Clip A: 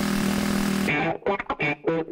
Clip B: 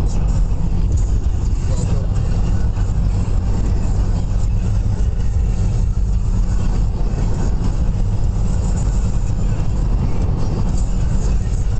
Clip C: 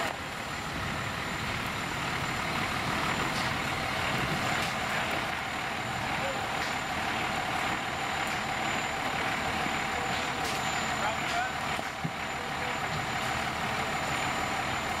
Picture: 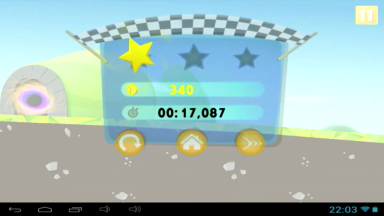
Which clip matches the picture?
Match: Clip A